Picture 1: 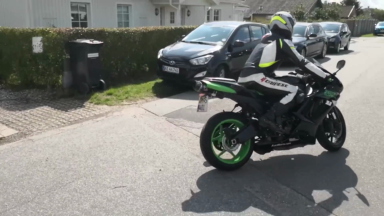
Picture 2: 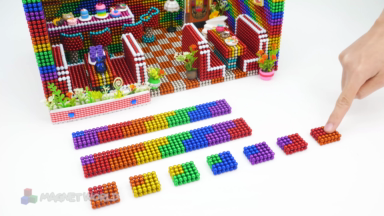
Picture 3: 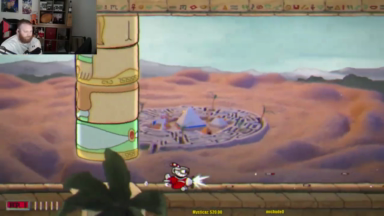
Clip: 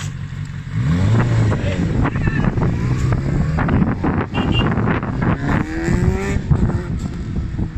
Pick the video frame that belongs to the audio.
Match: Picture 1